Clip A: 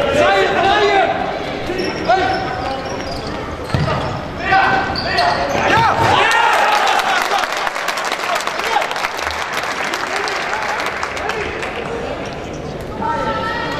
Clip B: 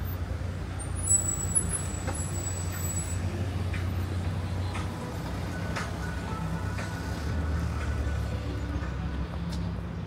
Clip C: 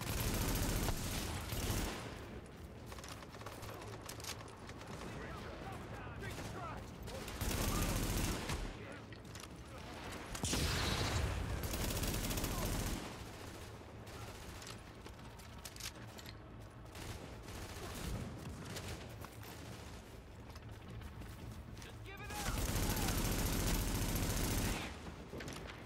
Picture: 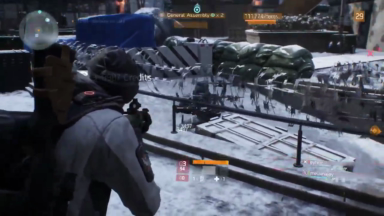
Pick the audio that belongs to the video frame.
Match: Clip C